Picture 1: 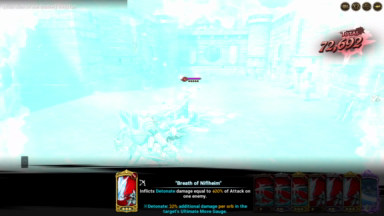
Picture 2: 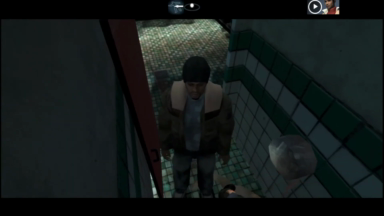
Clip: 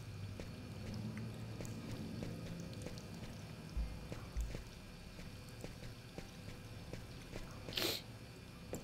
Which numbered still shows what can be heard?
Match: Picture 2